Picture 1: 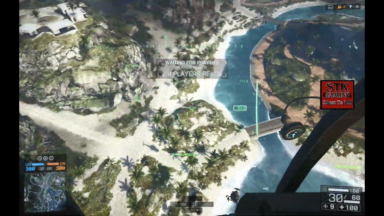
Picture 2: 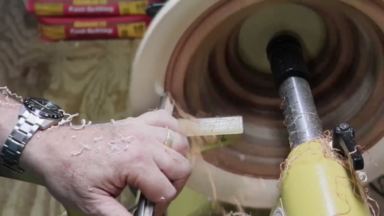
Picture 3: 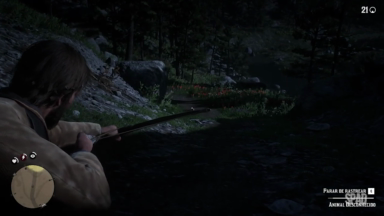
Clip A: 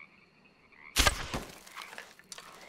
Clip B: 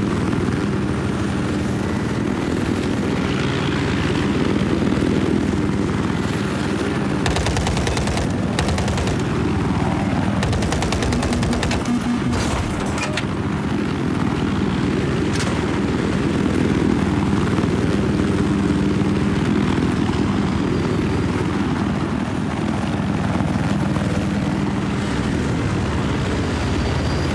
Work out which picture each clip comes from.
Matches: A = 3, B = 1